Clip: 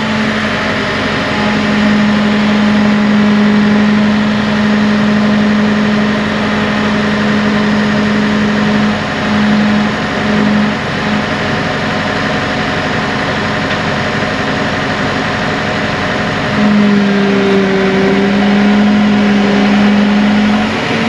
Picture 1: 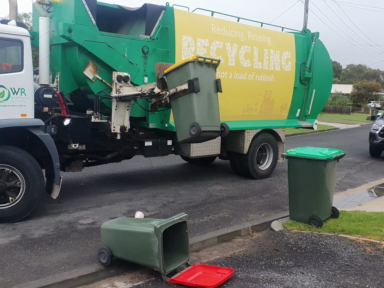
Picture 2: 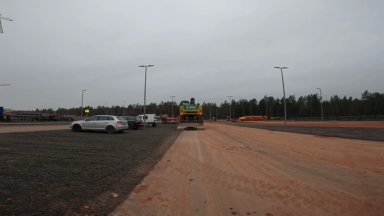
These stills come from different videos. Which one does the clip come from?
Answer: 2